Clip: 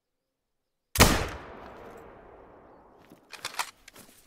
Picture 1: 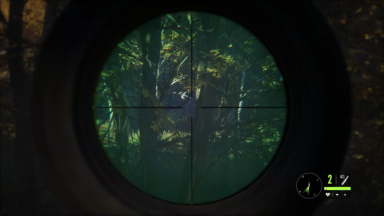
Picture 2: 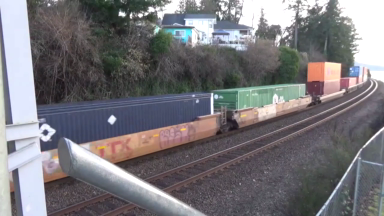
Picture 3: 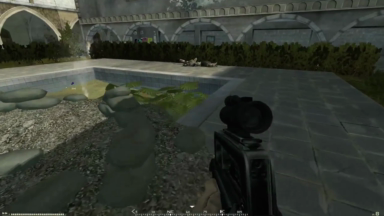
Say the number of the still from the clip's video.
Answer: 1